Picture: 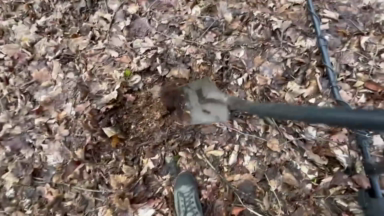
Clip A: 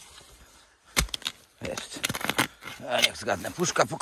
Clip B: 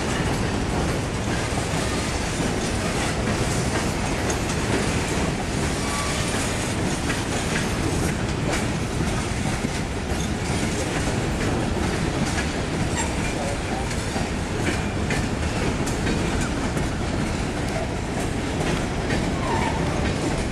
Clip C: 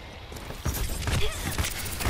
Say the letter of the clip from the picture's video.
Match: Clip A